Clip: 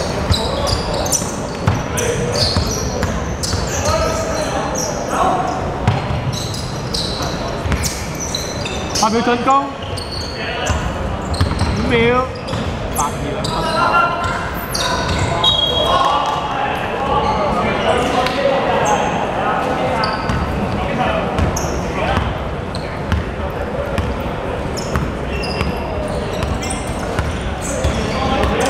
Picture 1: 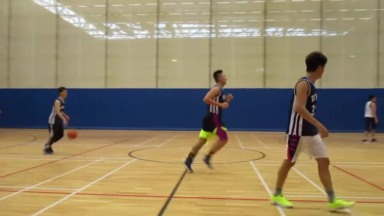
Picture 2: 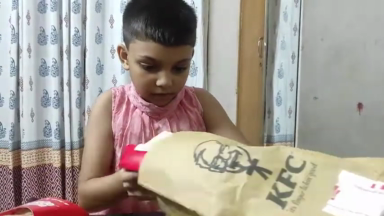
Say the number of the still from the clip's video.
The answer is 1